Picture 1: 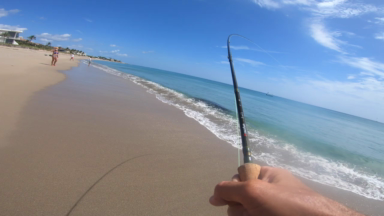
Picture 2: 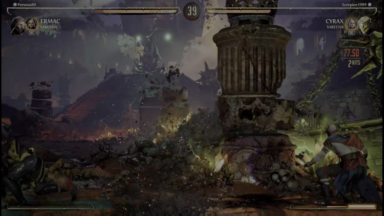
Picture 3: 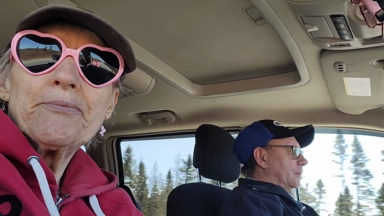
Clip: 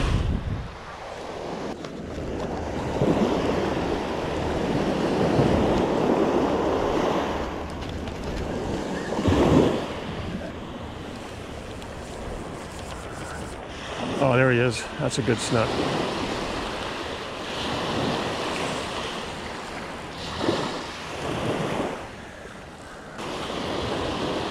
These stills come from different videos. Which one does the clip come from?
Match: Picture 1